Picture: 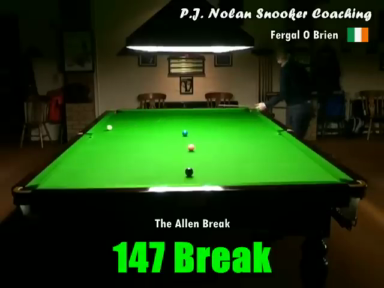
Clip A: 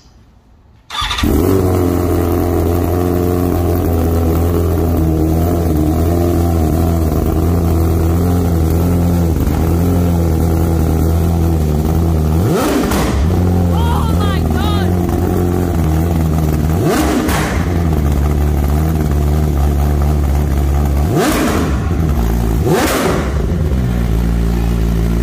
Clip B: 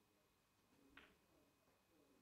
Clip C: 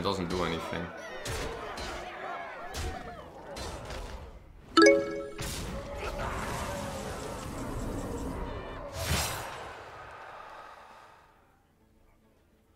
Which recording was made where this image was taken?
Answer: B